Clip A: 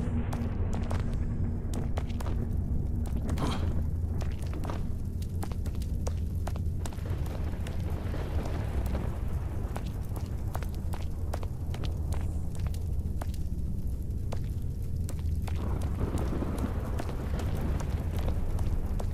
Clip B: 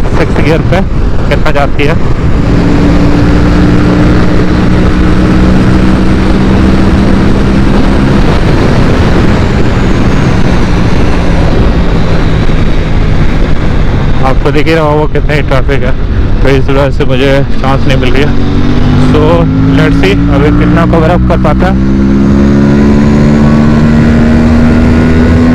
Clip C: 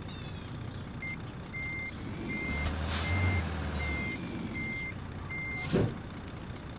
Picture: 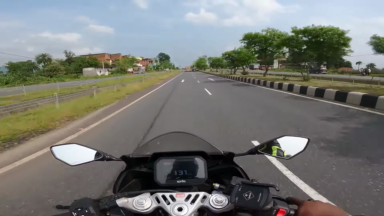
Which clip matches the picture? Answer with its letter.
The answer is B